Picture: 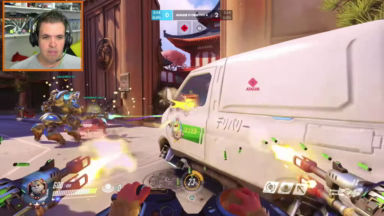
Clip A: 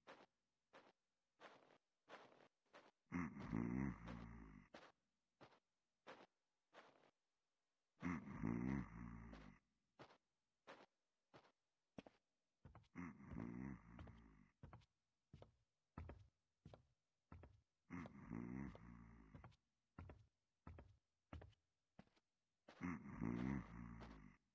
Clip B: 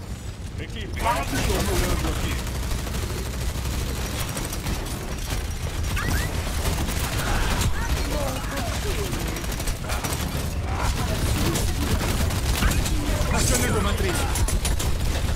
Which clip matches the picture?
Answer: B